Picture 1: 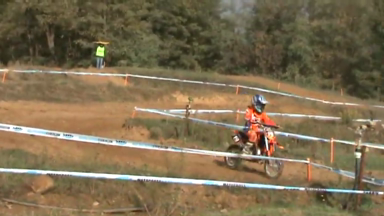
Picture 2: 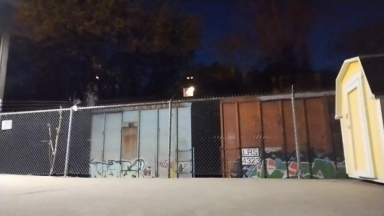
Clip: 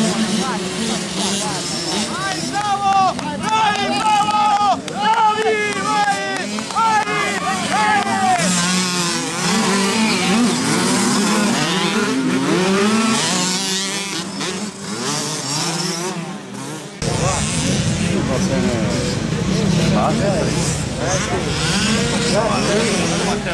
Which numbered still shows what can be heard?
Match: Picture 1